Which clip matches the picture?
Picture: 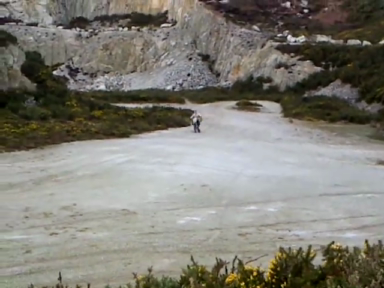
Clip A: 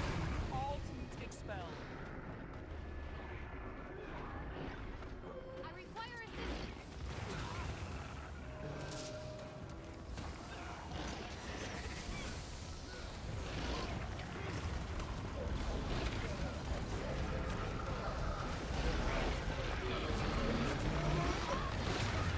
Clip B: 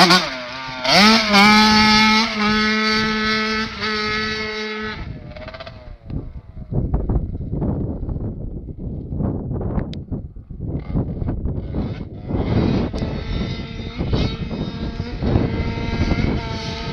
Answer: B